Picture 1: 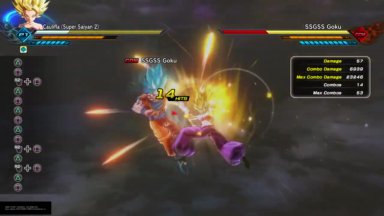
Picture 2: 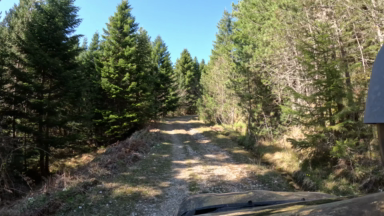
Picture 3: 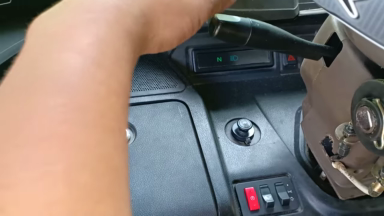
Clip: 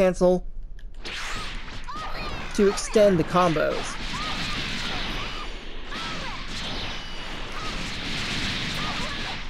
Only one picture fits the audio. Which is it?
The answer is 1